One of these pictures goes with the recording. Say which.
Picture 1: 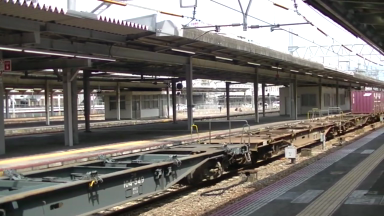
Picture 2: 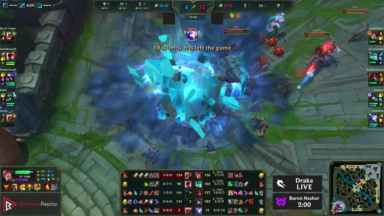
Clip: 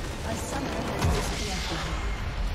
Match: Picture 2